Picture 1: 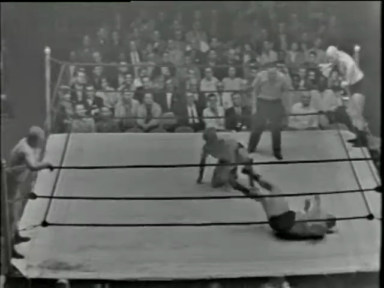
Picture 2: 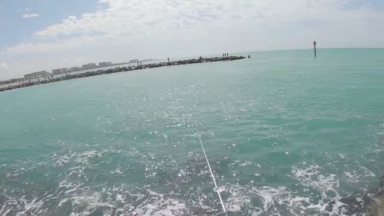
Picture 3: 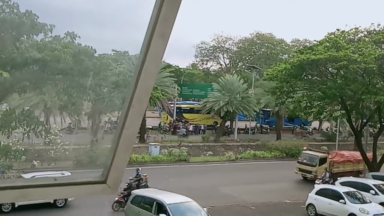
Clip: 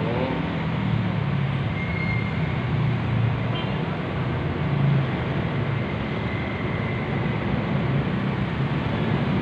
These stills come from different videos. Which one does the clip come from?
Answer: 3